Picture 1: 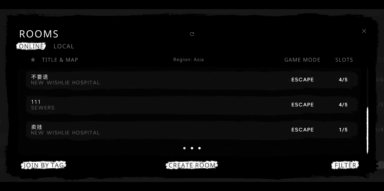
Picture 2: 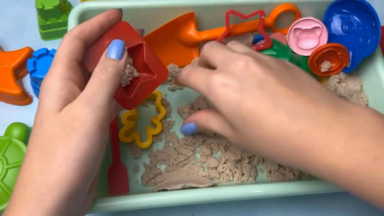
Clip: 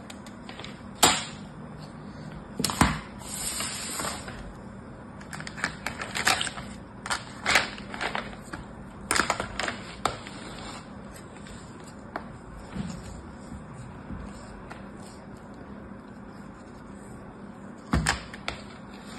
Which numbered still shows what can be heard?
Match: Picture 2